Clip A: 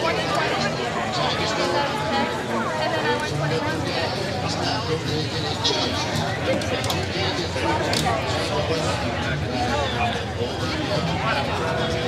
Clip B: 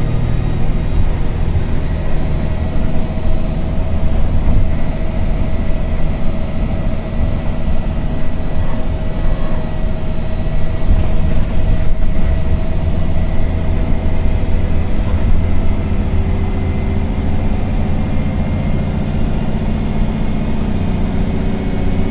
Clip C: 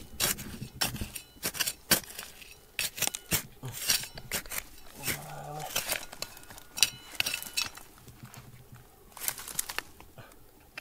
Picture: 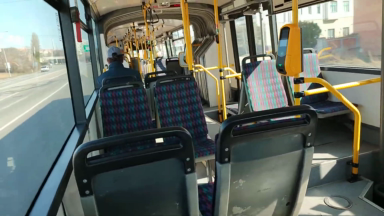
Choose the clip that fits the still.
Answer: B